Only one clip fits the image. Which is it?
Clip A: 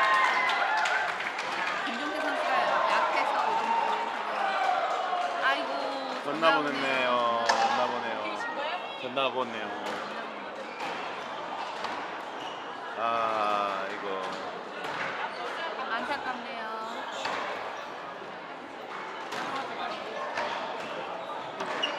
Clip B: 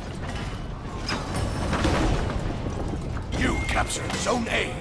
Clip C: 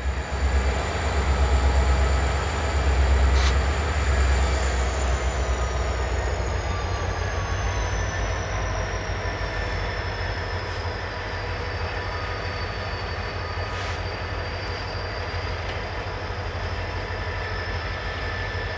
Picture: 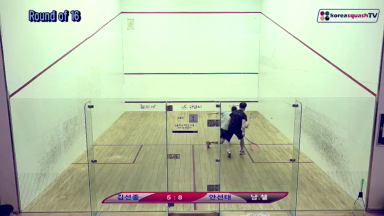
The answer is A